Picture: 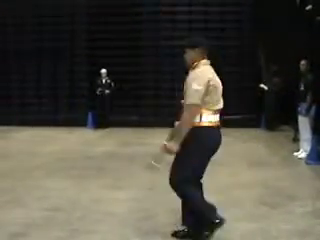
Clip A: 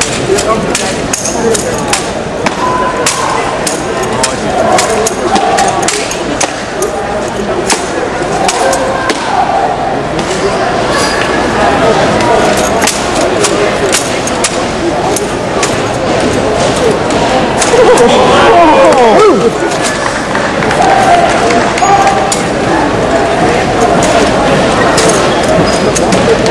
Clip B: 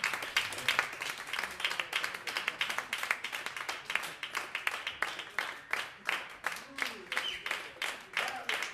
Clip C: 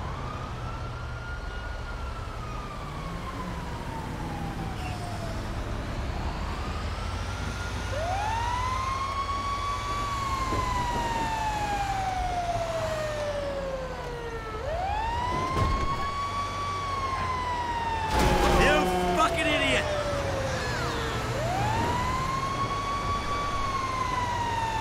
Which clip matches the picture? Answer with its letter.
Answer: A